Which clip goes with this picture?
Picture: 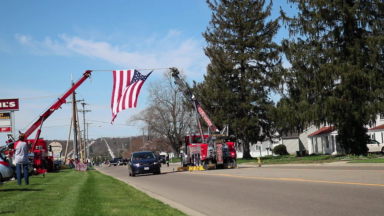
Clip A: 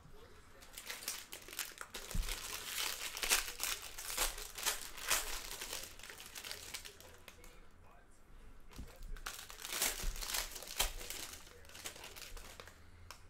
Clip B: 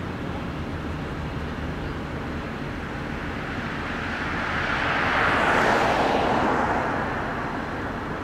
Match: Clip B